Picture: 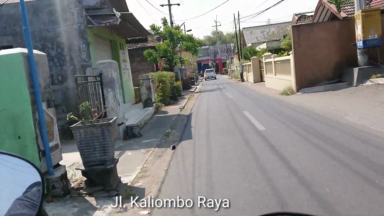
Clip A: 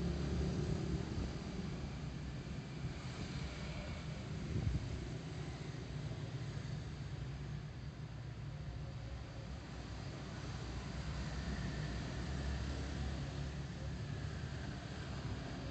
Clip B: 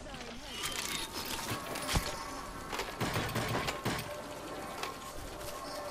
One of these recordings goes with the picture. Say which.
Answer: A